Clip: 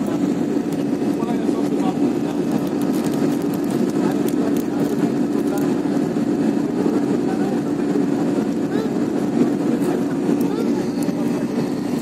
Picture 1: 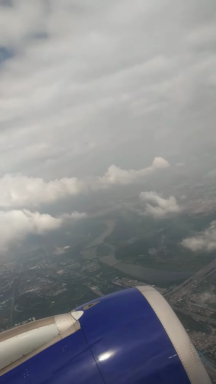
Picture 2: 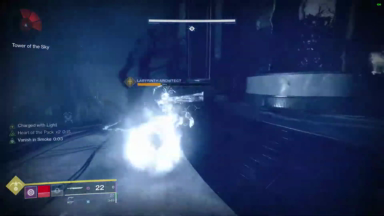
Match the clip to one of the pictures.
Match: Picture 1